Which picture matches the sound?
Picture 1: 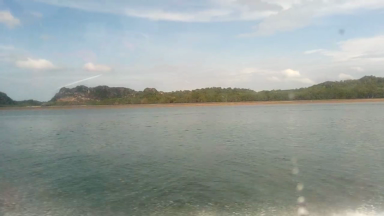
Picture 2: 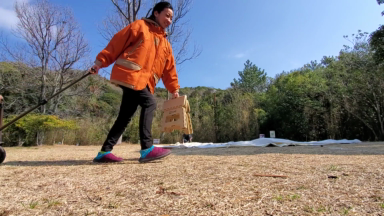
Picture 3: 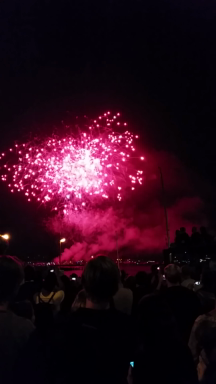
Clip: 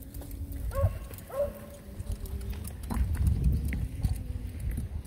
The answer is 2